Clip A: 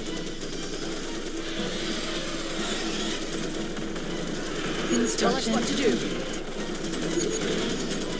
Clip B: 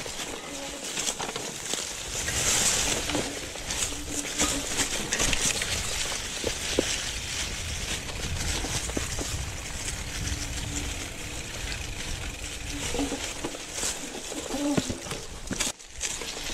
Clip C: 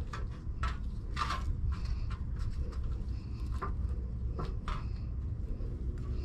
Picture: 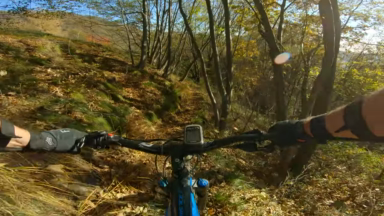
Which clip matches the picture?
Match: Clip B